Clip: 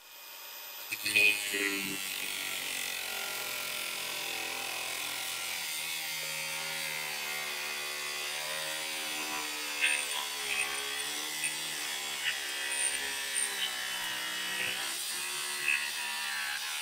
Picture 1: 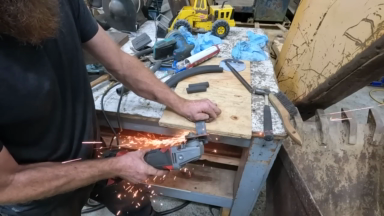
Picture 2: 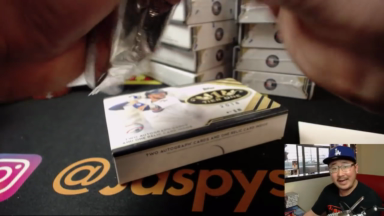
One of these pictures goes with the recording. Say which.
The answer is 1